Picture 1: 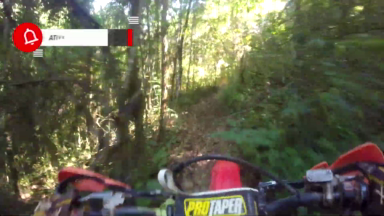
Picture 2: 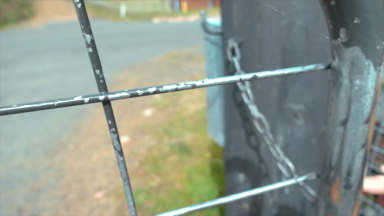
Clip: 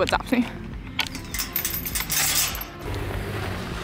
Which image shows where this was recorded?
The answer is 2